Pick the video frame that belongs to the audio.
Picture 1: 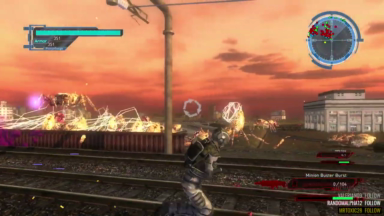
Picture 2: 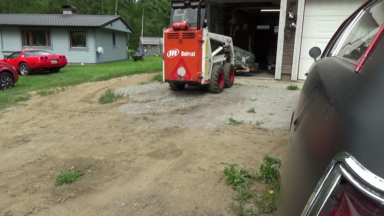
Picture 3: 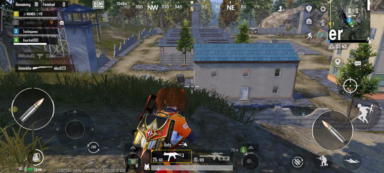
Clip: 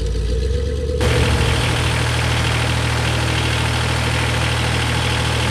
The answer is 2